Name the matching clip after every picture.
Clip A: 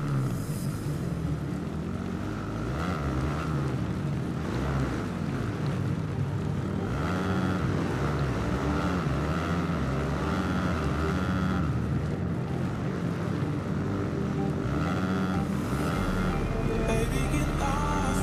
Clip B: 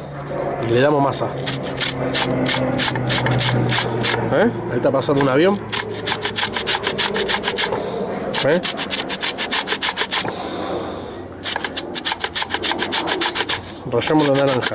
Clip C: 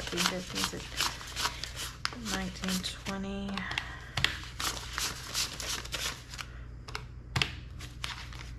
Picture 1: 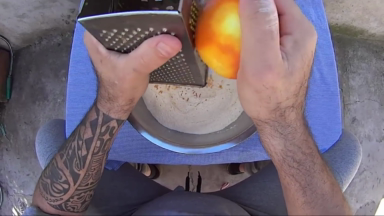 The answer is B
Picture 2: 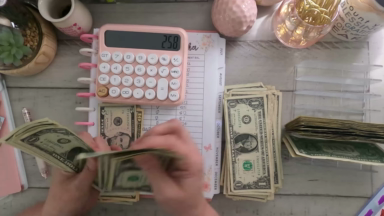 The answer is C